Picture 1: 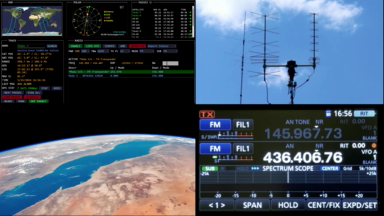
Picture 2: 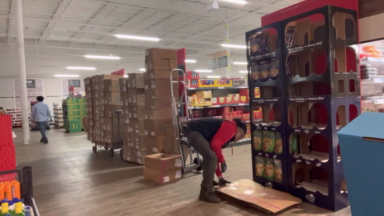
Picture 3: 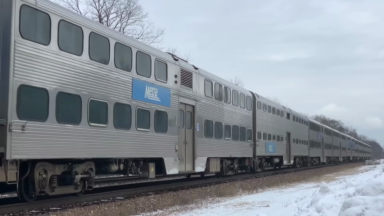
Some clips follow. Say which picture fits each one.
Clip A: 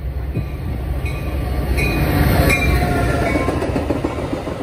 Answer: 3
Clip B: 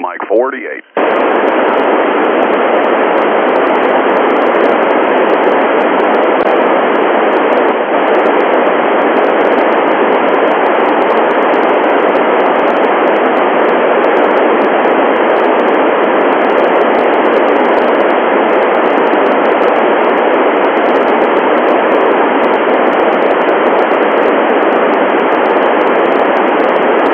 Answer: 1